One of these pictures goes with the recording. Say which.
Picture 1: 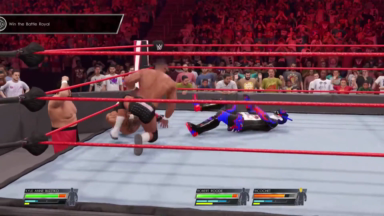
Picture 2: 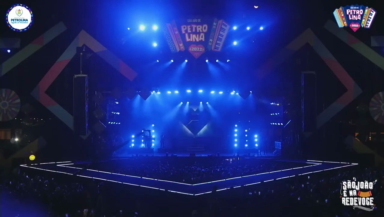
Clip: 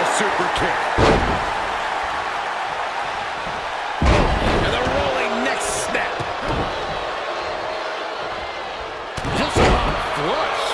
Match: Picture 1